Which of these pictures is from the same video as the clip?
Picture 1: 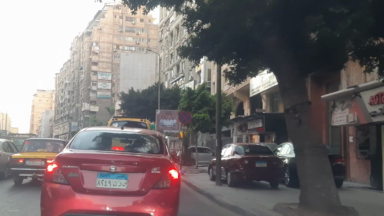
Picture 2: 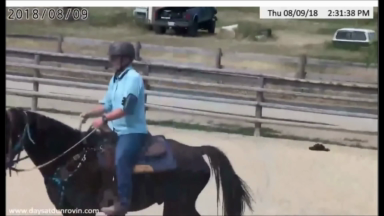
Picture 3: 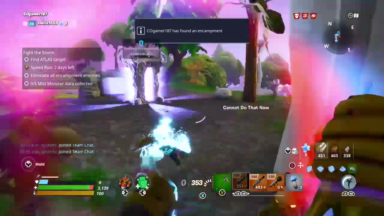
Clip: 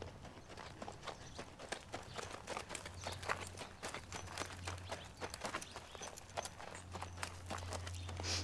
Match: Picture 2